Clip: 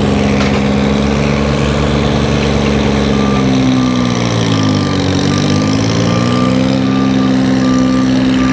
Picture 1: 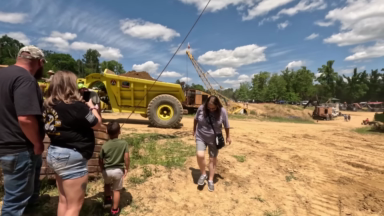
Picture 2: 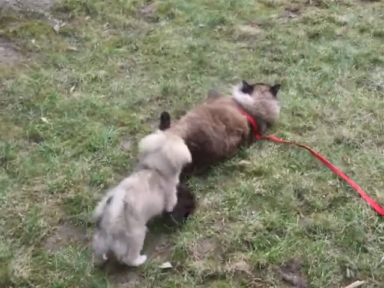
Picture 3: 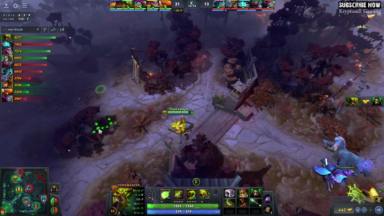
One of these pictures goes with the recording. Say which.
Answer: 1